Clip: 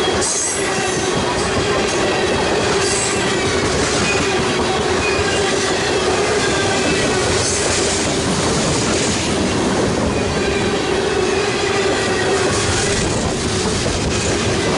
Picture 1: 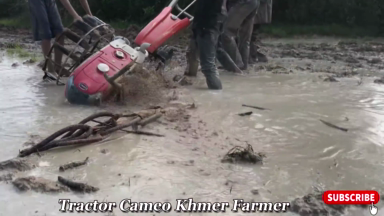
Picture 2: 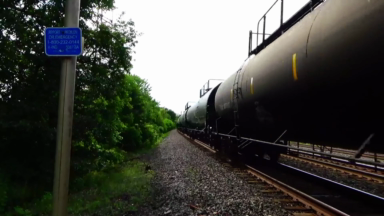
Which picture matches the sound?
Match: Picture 2